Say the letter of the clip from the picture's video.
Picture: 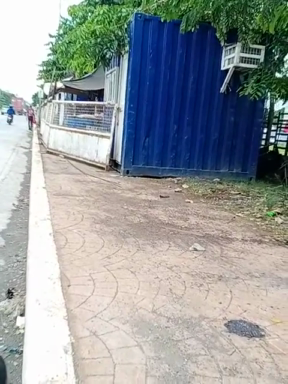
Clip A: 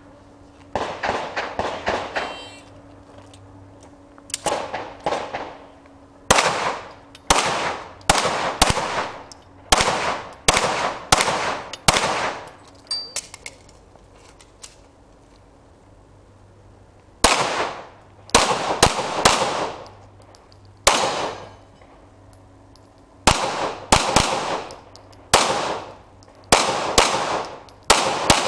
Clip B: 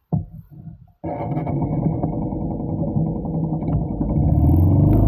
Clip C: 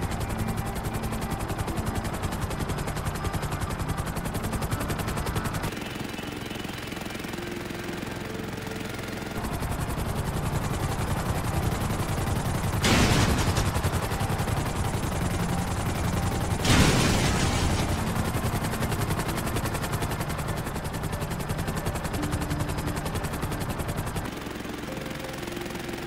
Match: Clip B